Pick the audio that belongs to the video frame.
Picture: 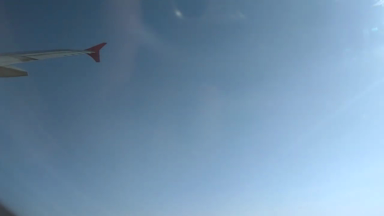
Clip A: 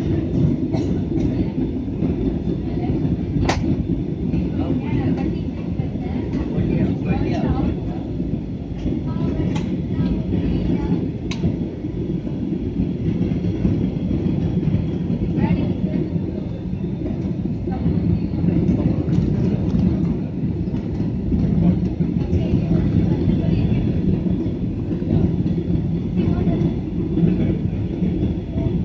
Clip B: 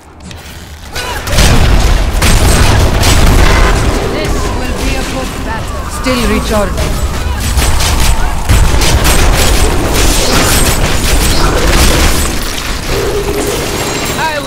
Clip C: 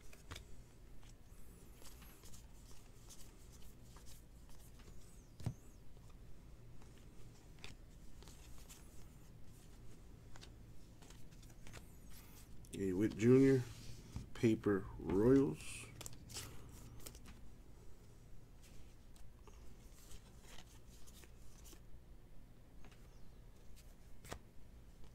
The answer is A